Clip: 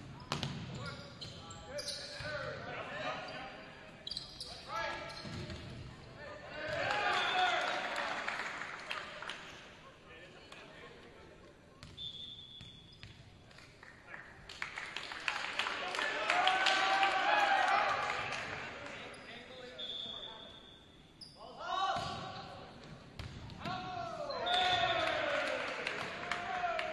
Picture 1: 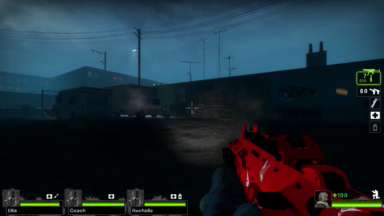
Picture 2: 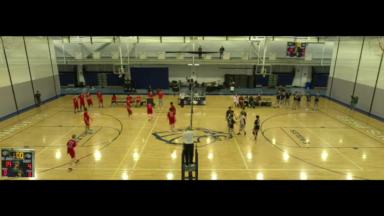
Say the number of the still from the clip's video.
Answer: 2